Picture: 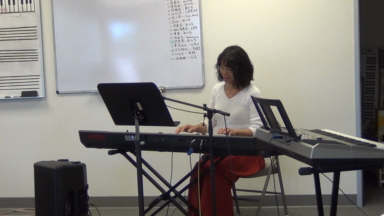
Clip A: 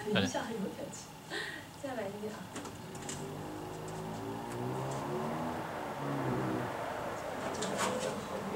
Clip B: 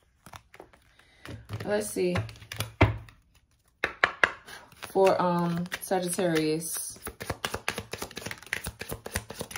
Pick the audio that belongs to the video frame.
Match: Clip A